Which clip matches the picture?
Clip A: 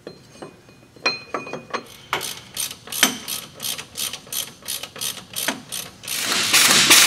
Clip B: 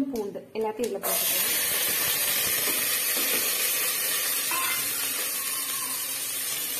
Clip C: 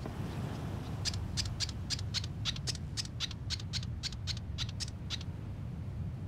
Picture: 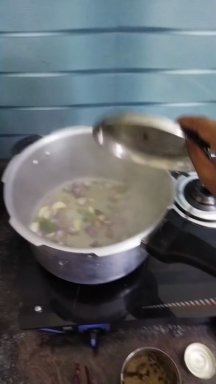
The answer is B